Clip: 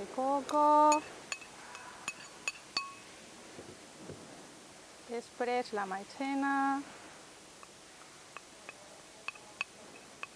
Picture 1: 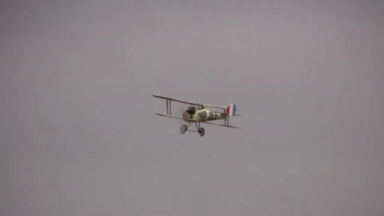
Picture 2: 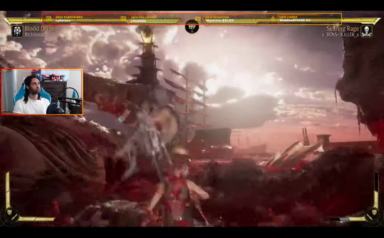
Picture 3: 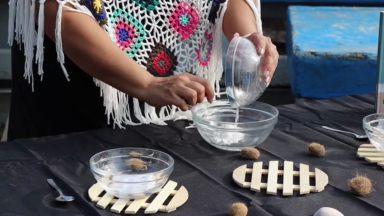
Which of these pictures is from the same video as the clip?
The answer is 3